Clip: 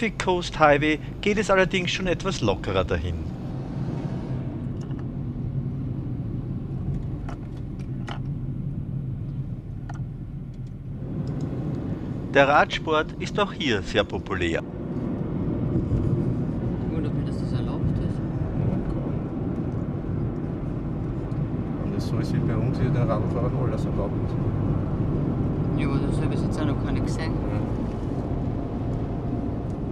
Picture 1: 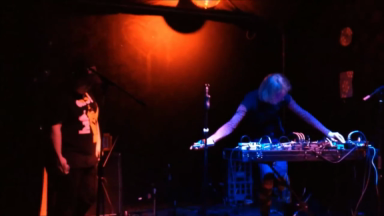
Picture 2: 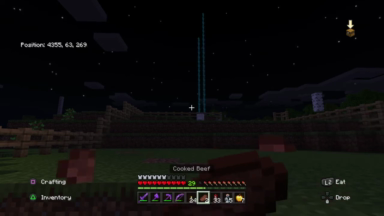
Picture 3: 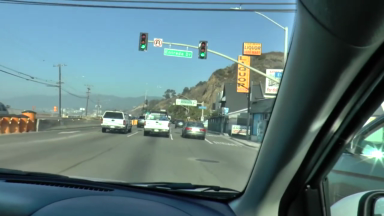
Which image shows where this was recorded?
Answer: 3